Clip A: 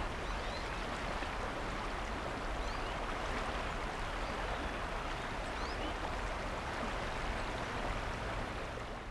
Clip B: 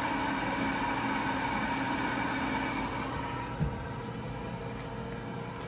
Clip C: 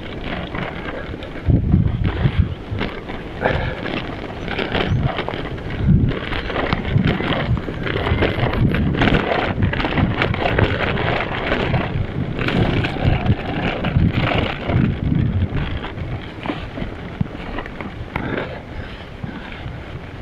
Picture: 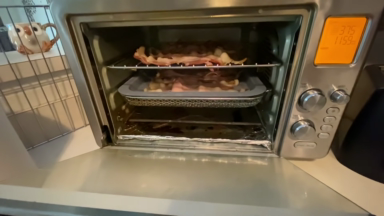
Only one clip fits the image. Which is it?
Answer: B